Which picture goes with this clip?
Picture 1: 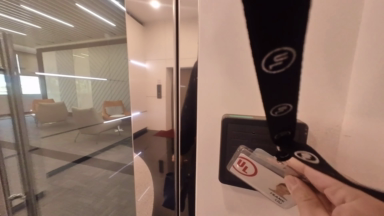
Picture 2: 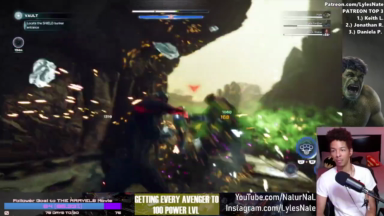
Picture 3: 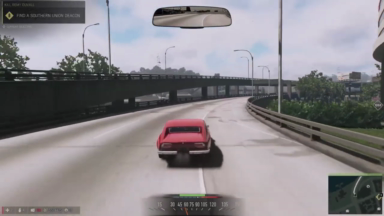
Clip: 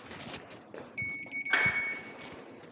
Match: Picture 1